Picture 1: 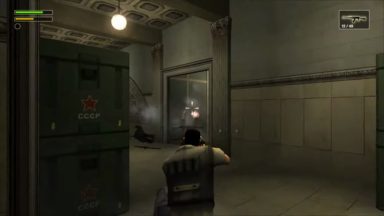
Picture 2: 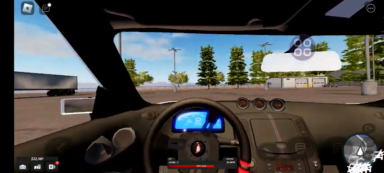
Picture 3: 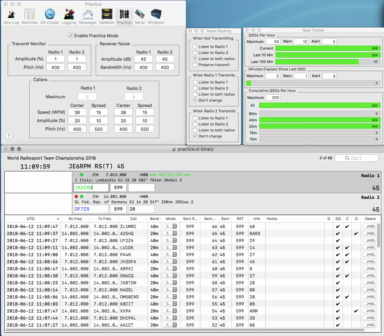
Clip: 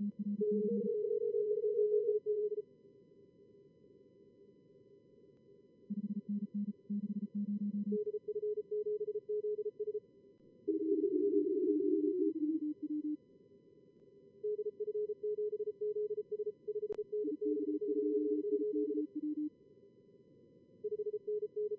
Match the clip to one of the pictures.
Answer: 3